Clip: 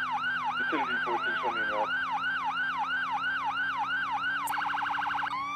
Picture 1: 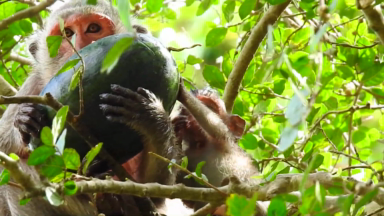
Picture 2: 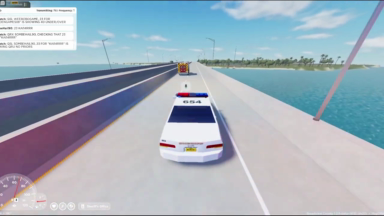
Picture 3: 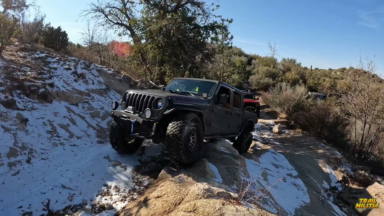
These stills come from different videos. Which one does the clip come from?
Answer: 2